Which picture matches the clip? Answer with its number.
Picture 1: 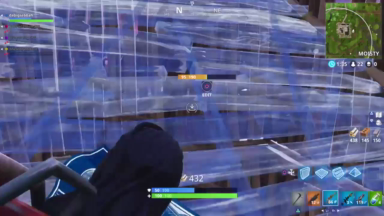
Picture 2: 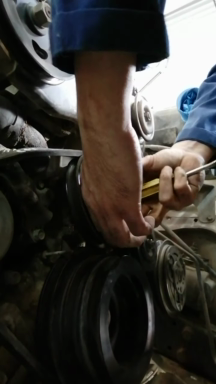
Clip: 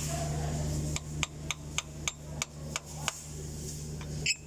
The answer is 2